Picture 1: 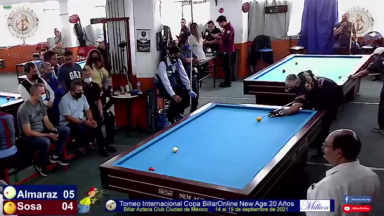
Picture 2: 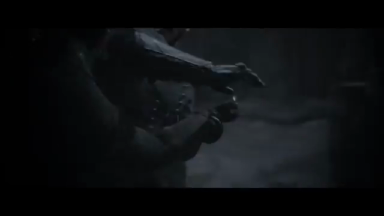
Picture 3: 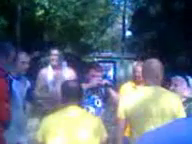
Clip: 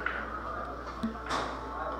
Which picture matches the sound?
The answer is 1